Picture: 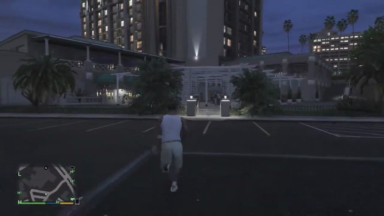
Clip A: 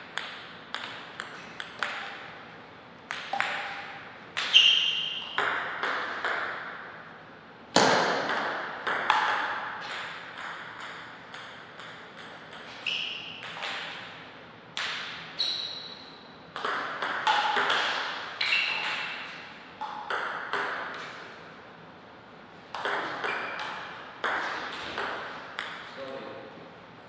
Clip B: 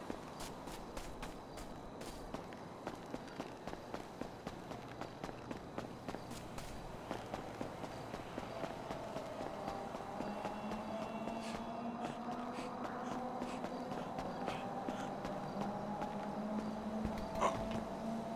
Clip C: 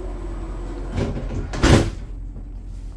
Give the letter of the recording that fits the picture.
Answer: B